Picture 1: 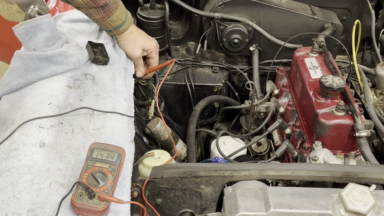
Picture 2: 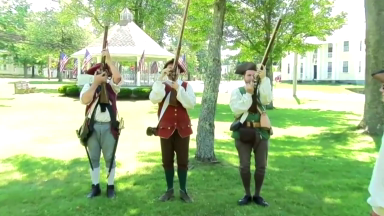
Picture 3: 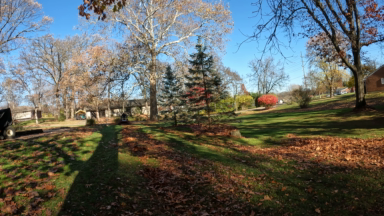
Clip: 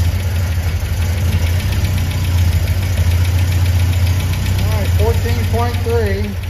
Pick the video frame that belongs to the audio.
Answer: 1